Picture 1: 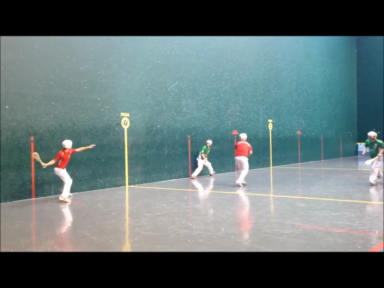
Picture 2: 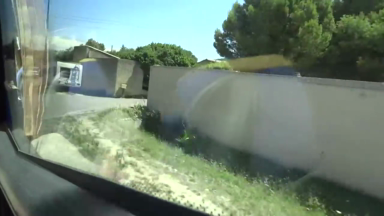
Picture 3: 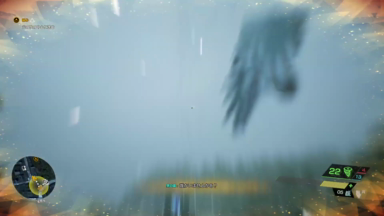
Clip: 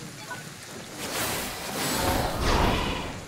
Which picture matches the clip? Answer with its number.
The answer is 3